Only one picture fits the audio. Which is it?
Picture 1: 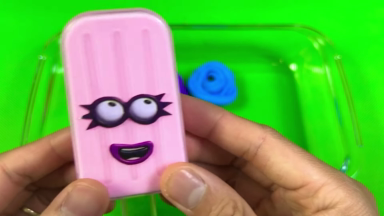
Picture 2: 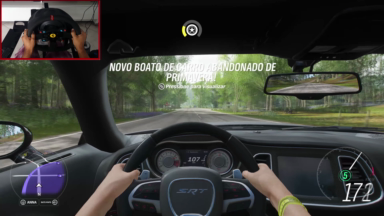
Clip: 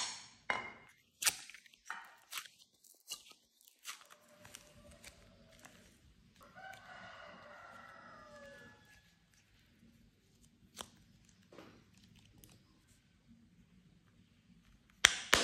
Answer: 1